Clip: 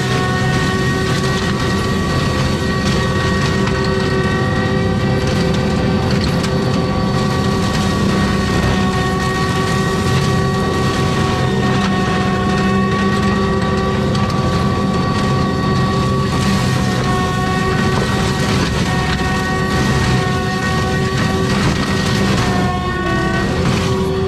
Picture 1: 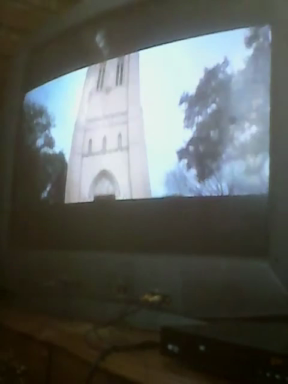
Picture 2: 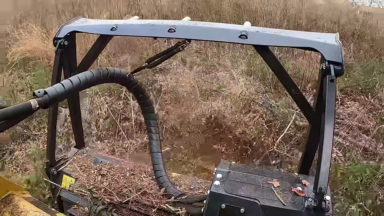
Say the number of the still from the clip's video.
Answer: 2